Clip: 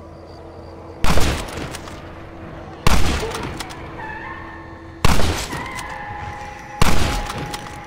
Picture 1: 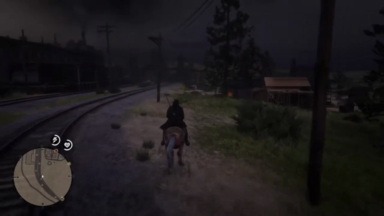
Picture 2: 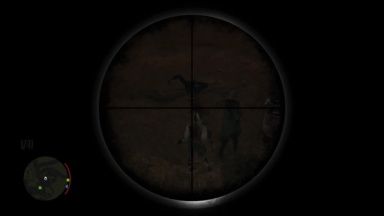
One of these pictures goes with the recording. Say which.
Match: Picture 2